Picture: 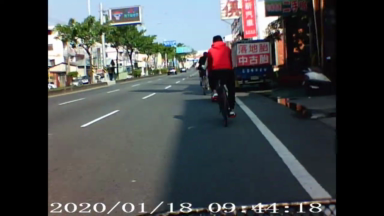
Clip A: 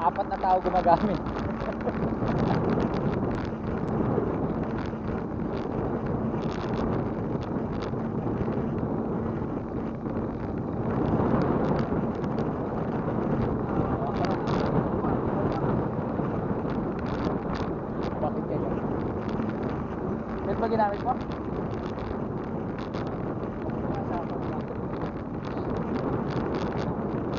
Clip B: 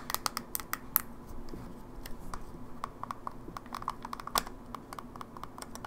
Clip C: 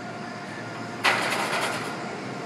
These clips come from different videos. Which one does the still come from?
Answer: A